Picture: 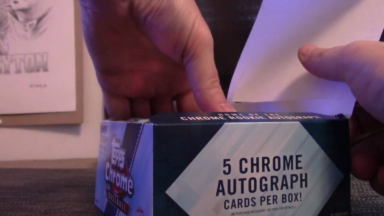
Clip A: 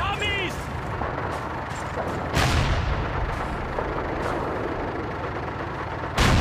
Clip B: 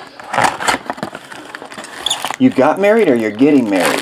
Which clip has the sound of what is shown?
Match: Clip B